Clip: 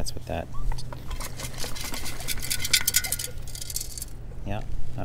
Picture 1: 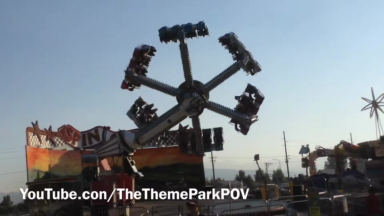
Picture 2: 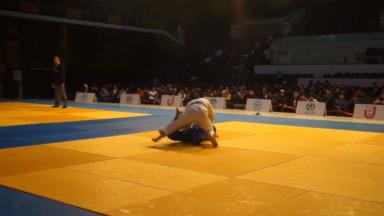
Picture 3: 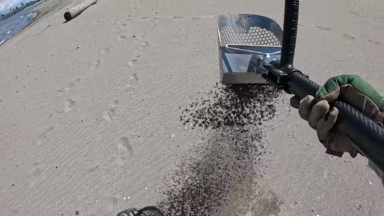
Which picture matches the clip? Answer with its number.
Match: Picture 3